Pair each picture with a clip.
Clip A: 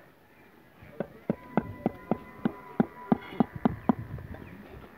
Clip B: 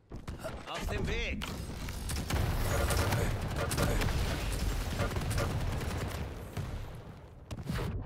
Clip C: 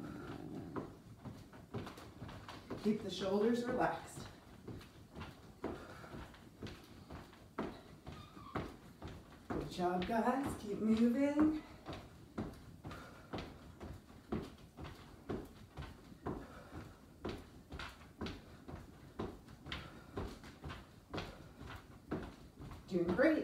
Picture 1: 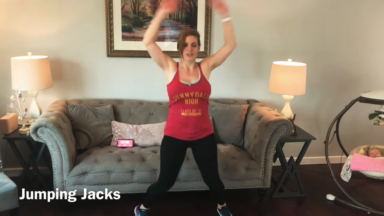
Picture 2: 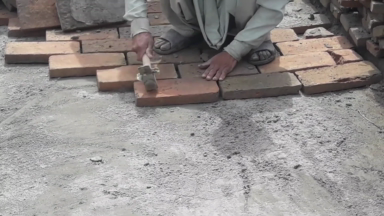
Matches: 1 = C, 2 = A